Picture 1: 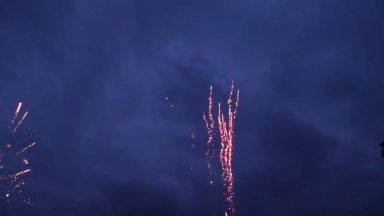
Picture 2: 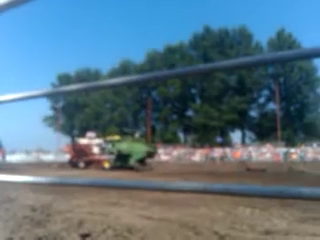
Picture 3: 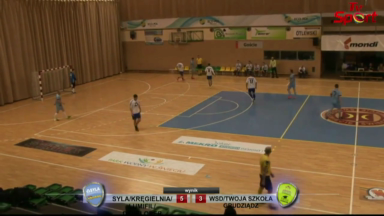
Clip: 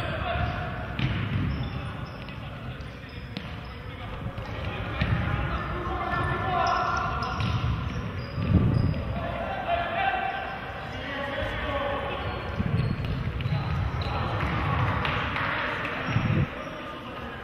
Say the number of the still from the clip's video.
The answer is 3